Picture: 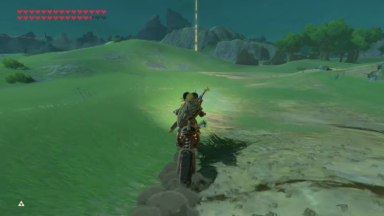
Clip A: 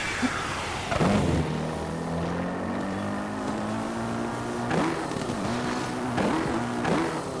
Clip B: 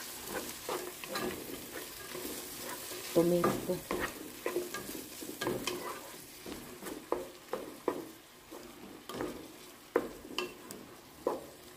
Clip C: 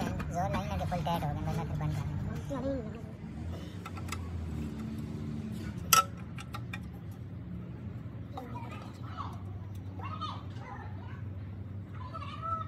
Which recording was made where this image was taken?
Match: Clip A